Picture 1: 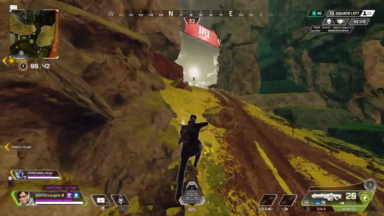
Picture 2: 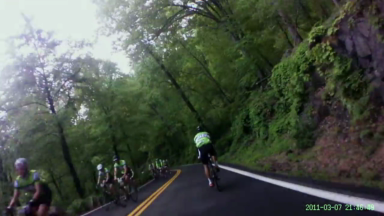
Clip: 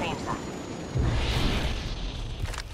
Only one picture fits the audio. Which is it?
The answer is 1